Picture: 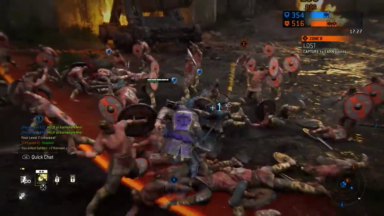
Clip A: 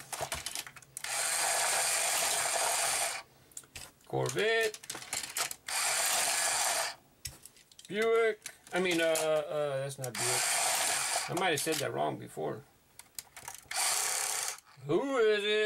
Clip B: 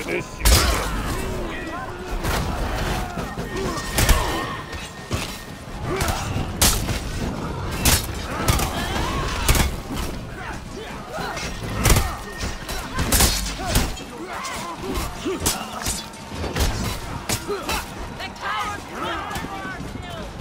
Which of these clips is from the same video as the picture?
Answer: B